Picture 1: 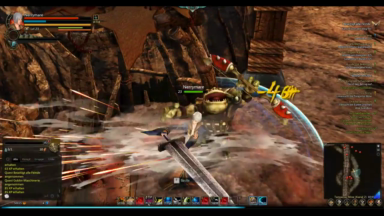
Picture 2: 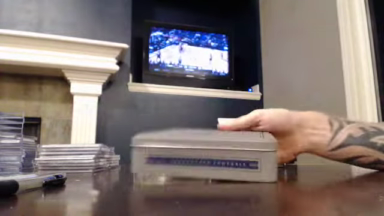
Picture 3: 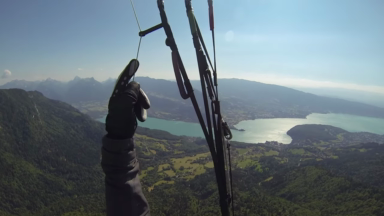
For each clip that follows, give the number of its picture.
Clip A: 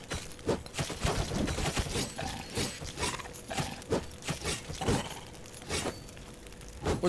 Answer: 1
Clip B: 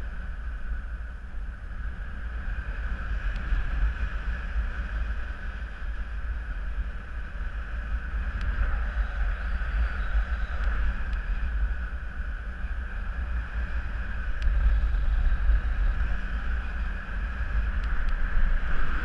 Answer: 3